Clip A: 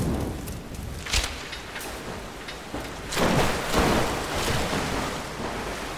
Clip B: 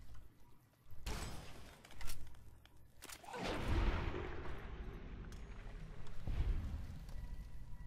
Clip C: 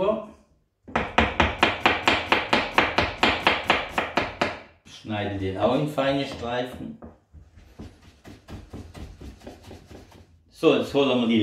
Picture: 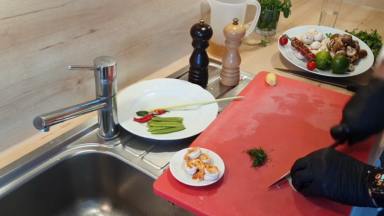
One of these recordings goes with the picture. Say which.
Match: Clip C